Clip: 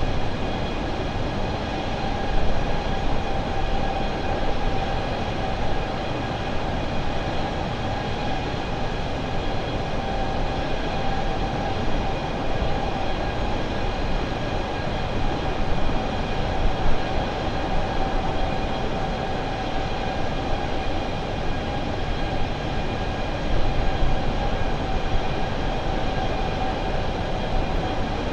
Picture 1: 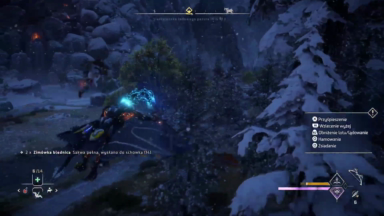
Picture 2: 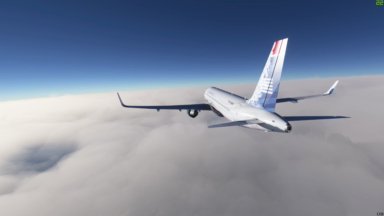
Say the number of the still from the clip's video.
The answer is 2